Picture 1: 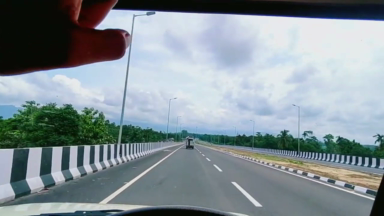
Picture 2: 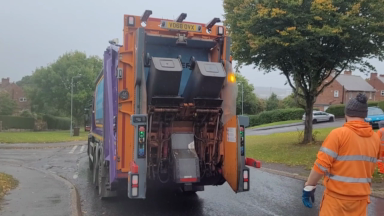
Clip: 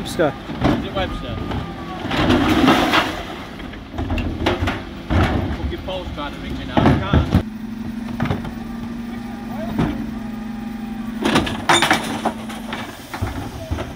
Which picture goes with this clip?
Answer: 2